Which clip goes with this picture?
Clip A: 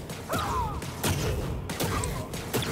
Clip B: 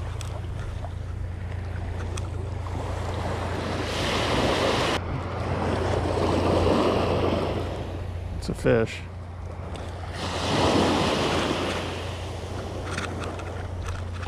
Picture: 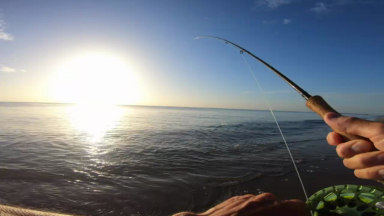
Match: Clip B